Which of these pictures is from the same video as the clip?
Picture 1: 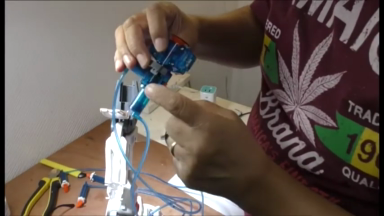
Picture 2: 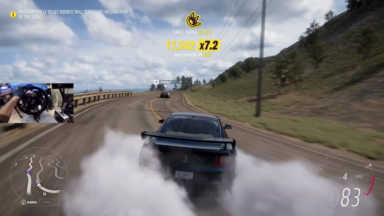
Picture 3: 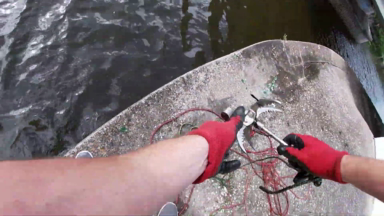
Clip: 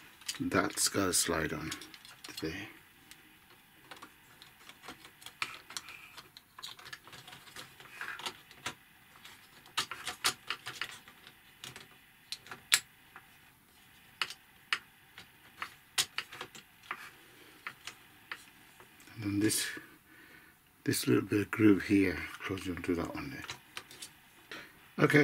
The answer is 1